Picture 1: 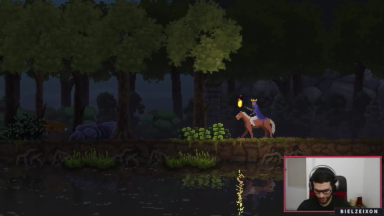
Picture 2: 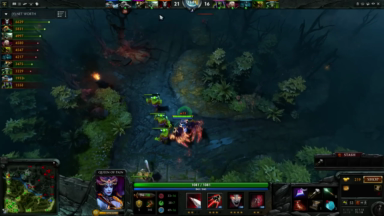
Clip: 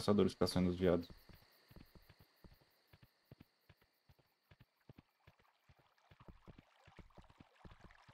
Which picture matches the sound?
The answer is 1